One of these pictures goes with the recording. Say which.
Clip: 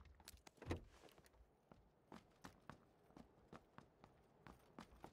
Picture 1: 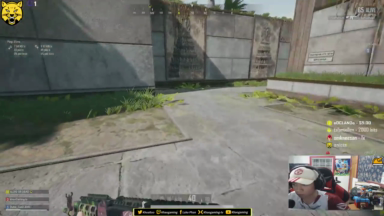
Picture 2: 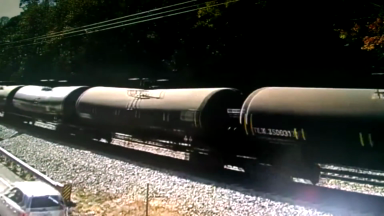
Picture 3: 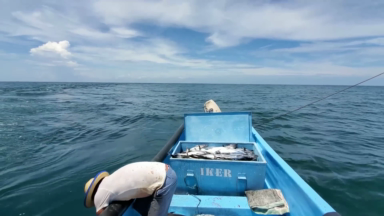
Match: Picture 1